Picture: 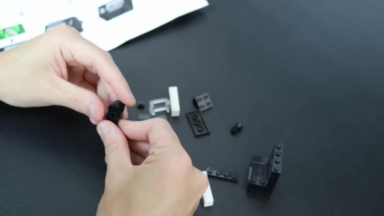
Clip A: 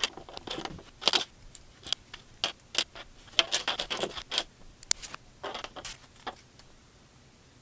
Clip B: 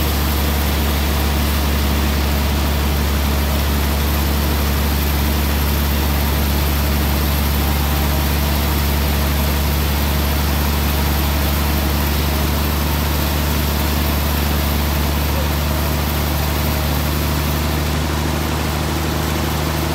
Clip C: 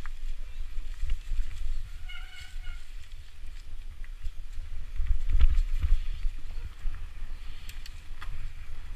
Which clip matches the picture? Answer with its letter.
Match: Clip A